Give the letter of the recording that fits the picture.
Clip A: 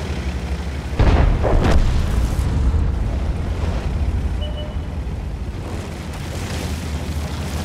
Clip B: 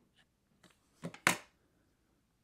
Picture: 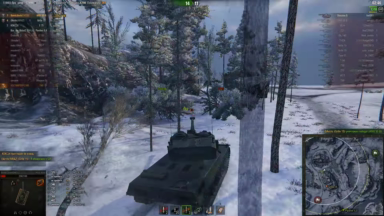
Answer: A